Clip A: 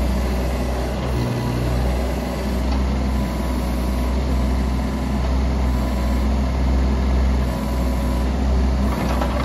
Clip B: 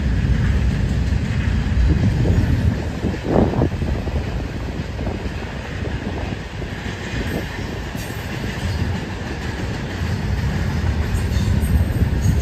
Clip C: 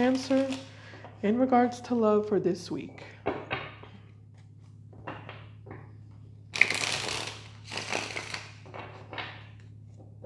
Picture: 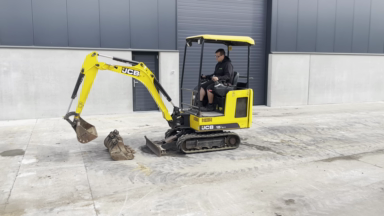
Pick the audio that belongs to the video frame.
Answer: A